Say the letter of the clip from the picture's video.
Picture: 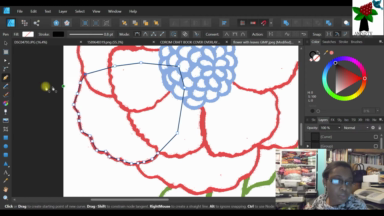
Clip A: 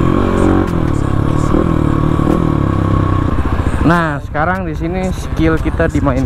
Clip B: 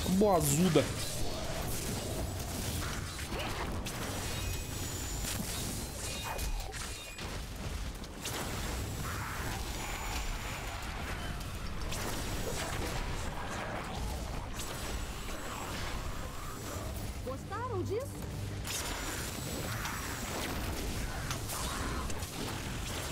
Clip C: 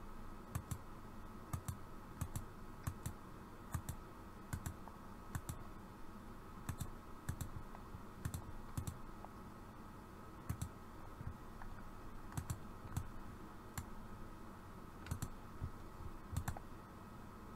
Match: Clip C